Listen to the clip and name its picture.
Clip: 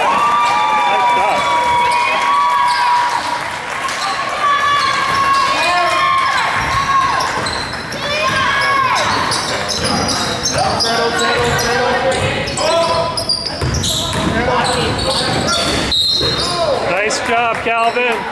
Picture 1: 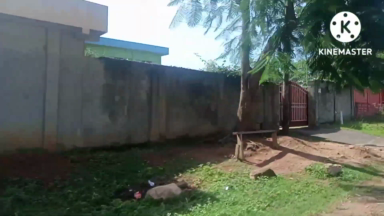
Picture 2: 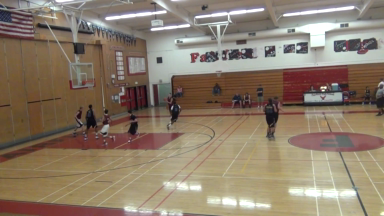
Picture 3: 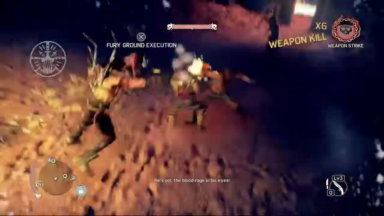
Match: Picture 2